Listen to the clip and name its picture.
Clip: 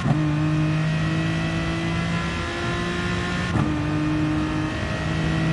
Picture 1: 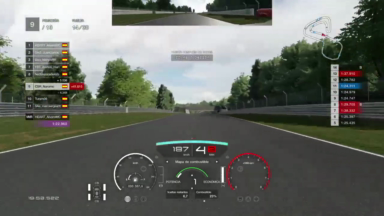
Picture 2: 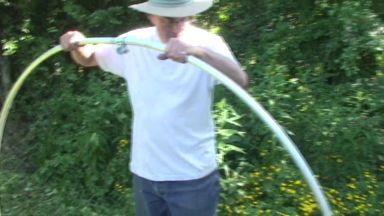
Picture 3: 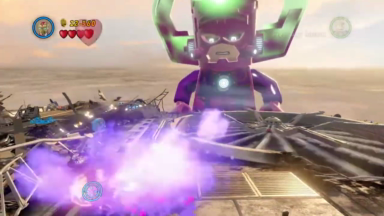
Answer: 1